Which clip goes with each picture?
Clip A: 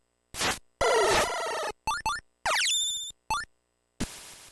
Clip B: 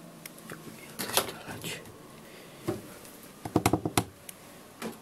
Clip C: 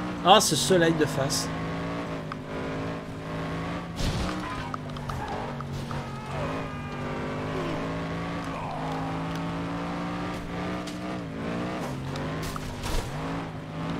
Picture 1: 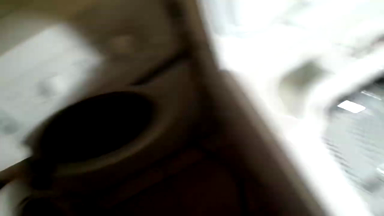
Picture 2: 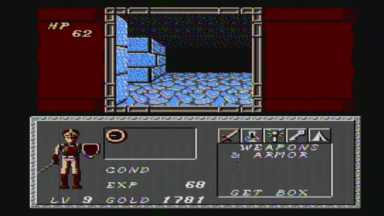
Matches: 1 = B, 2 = A